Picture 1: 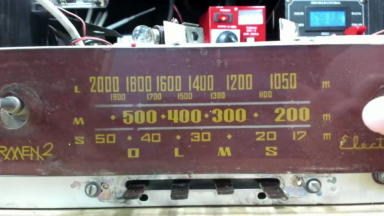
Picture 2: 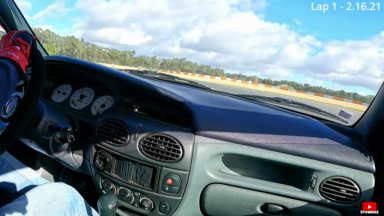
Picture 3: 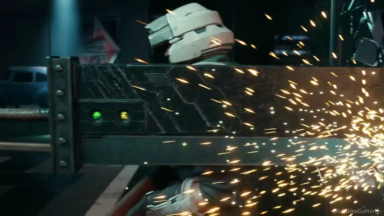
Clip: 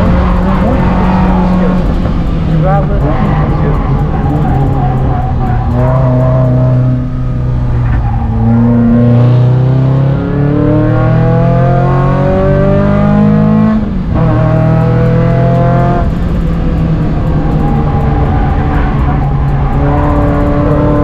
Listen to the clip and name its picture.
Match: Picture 2